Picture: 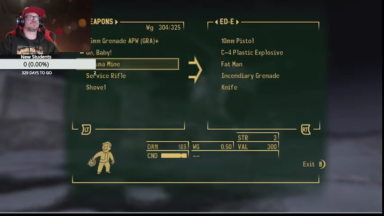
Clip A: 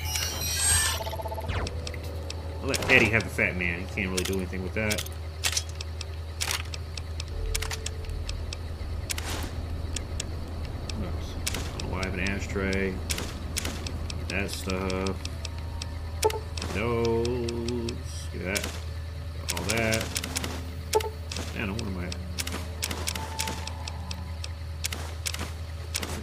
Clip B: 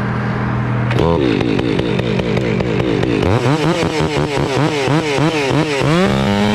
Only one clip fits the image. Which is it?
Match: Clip A